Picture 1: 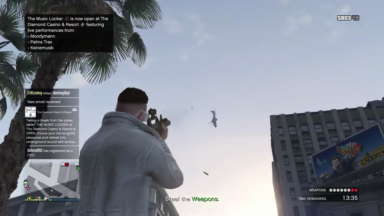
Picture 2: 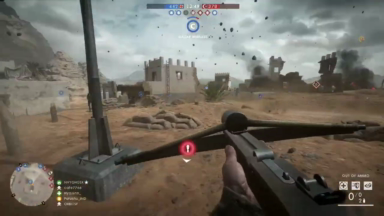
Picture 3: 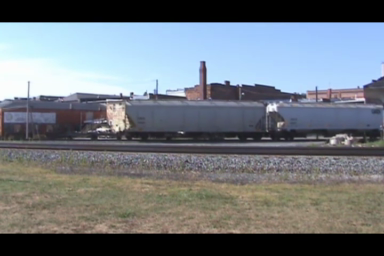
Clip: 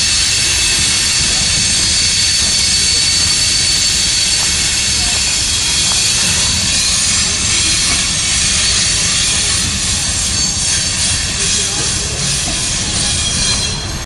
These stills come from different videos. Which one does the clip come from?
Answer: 3